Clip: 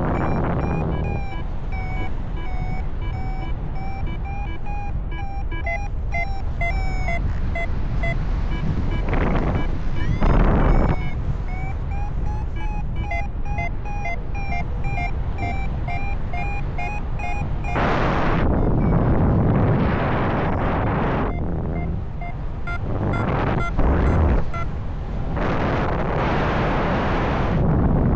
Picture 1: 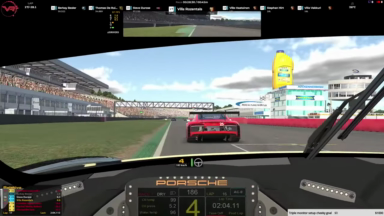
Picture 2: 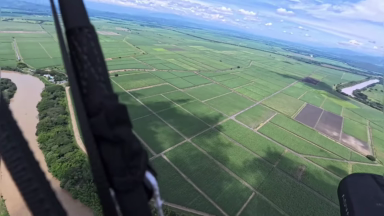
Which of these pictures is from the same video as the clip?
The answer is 2